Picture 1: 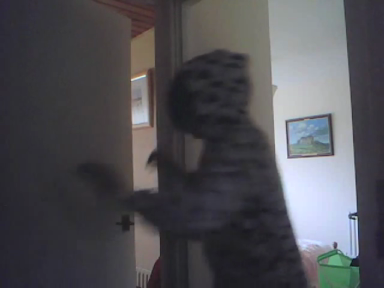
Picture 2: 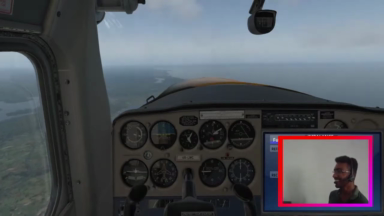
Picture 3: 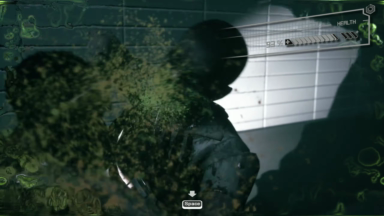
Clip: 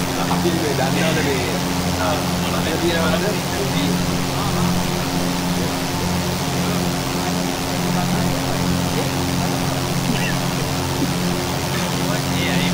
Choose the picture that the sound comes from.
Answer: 2